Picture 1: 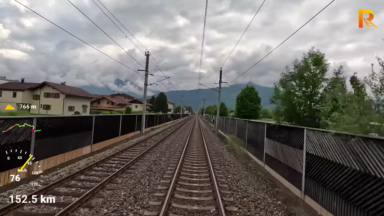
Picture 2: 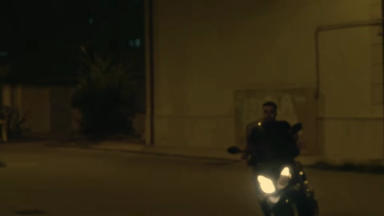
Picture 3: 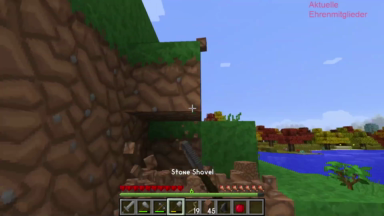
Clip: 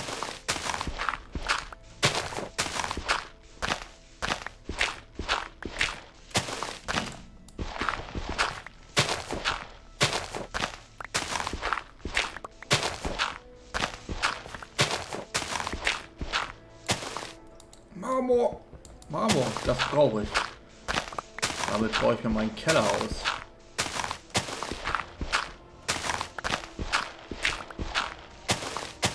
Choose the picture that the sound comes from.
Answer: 3